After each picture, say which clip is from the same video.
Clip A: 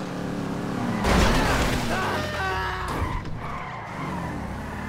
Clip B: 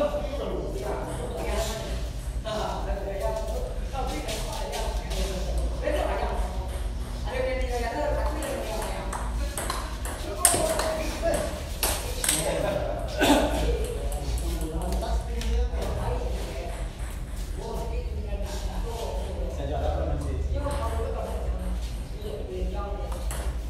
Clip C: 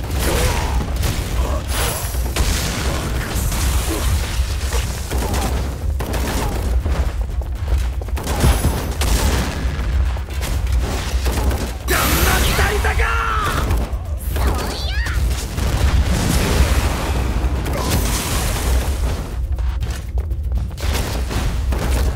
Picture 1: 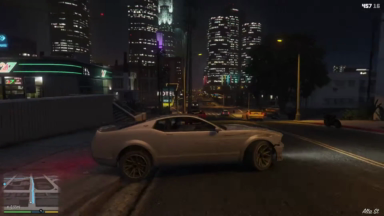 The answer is A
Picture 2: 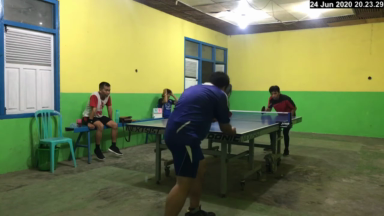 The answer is B